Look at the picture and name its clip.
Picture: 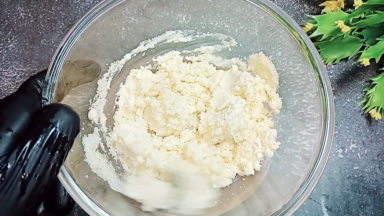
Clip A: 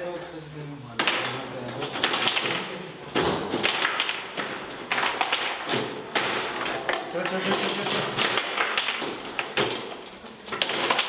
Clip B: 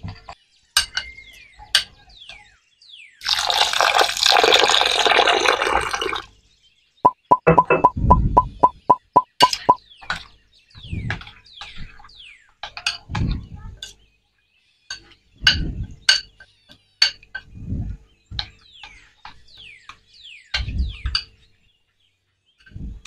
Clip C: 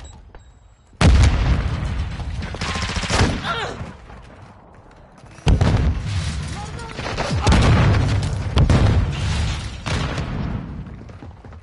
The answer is B